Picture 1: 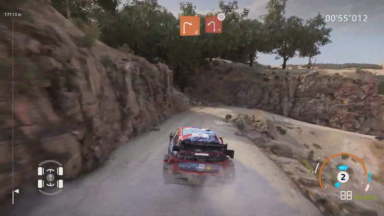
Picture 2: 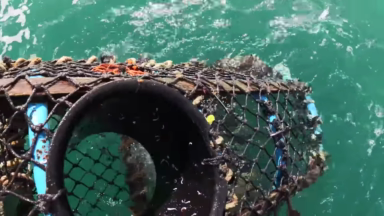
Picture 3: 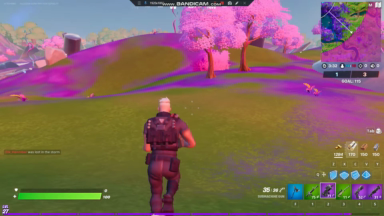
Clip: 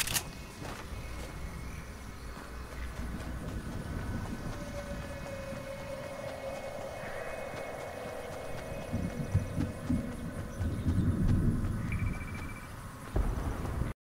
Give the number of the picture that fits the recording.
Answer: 3